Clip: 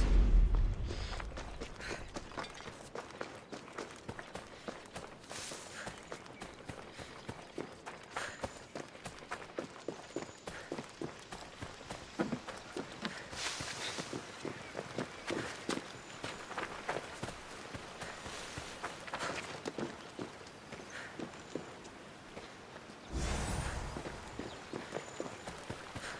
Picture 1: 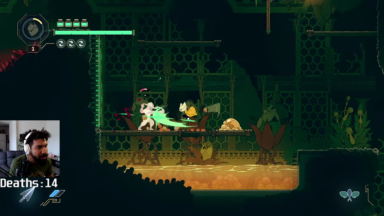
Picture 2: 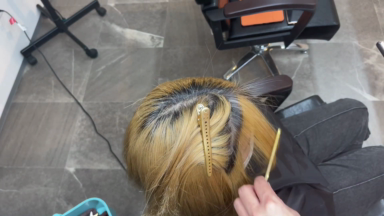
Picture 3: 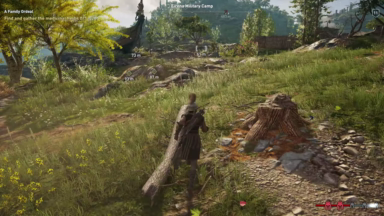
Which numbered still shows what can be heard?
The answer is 3